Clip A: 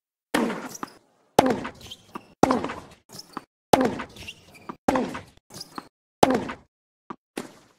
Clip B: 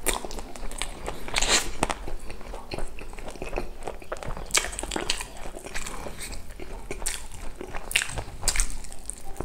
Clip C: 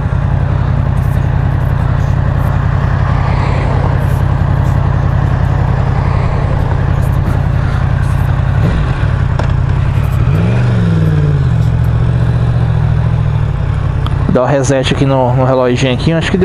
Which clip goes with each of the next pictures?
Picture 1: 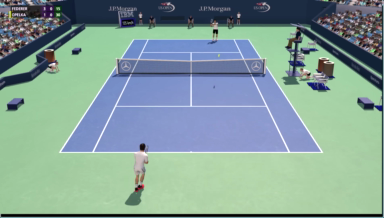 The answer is A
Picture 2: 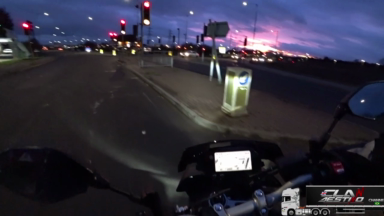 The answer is C